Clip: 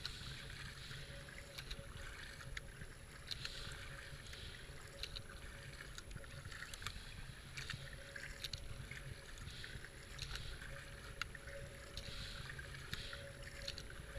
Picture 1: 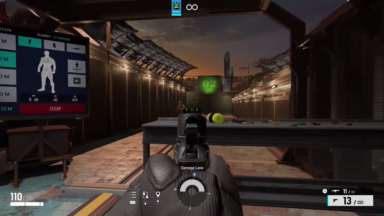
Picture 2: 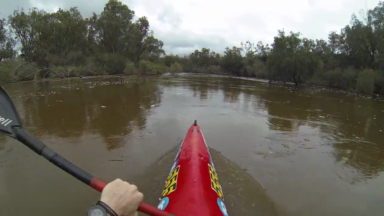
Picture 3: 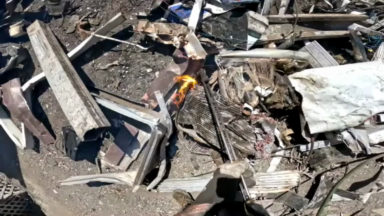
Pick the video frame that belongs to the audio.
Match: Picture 2